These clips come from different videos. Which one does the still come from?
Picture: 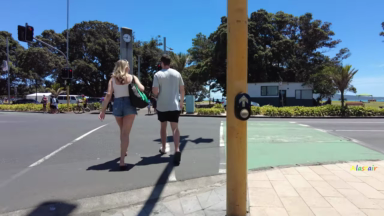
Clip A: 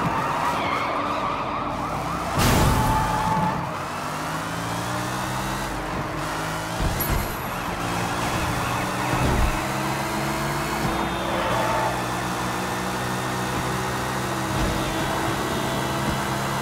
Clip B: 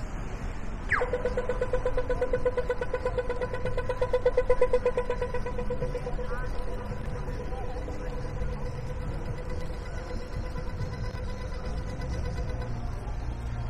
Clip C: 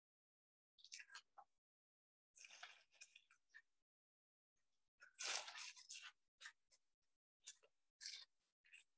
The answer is B